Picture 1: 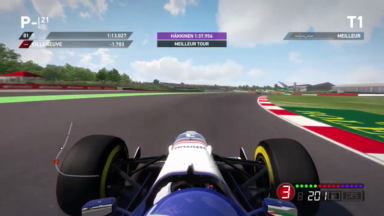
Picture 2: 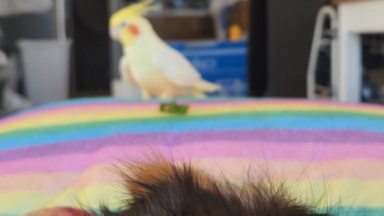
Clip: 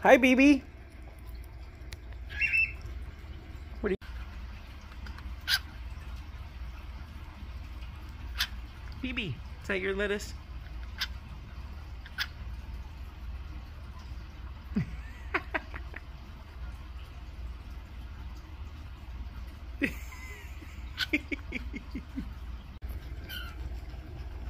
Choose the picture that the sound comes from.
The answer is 2